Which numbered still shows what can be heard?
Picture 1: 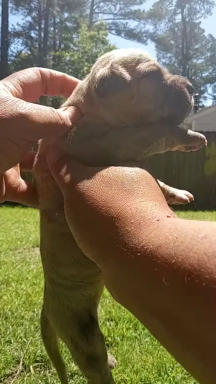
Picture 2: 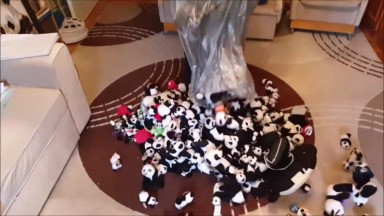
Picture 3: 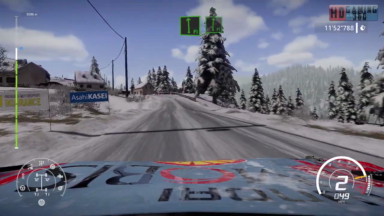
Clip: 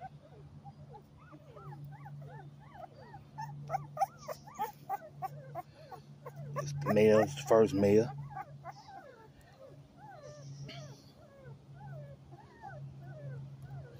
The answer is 1